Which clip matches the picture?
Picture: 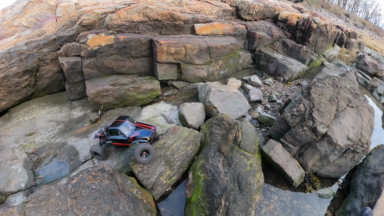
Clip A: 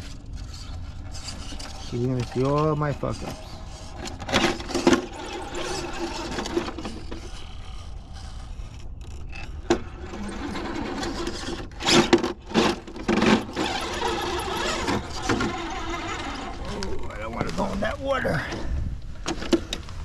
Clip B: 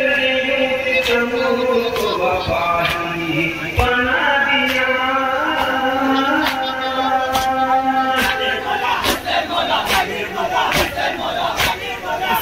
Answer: A